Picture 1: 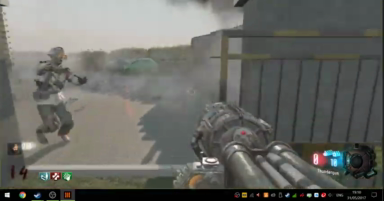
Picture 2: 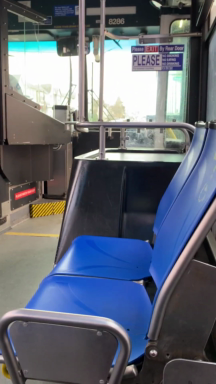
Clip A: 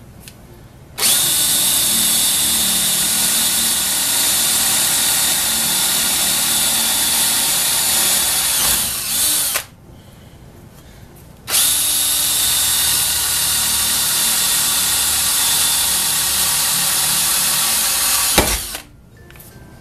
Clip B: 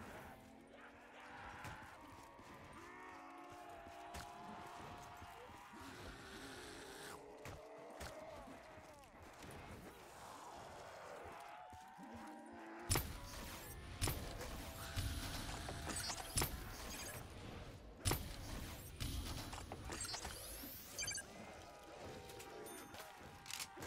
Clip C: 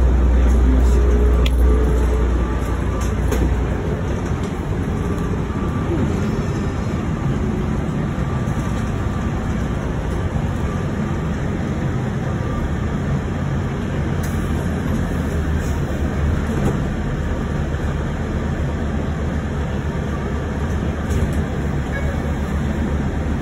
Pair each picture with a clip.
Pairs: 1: B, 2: C